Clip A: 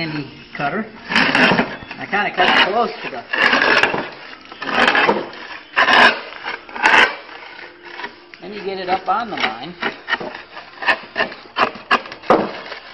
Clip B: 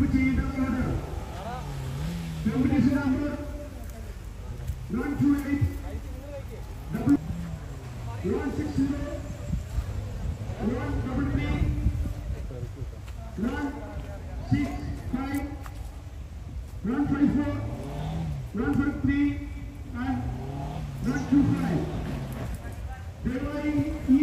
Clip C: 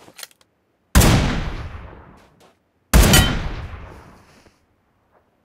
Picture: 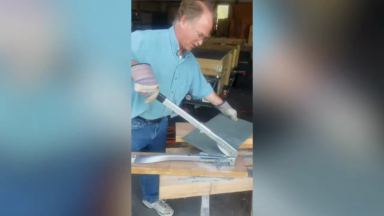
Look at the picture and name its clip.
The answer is A